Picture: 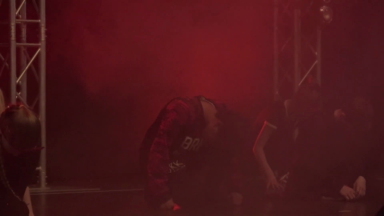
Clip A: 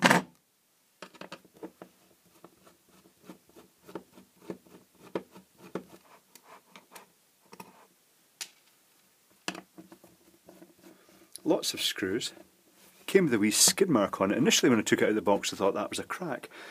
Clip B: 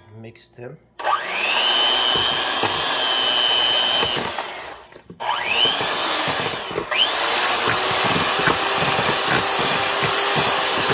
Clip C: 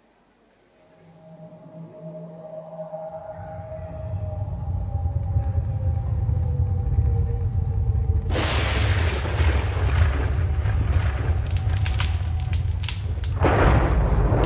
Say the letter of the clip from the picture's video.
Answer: C